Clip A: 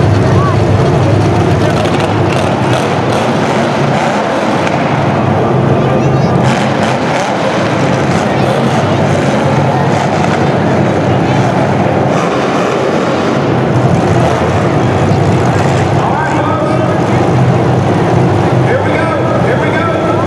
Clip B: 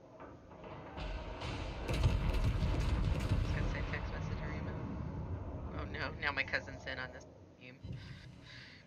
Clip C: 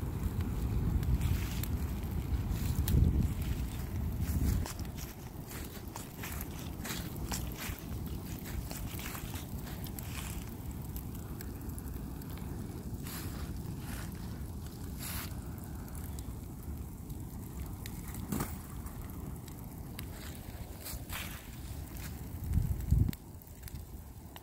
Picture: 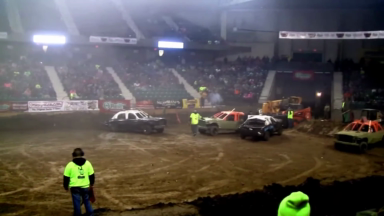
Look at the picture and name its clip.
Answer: A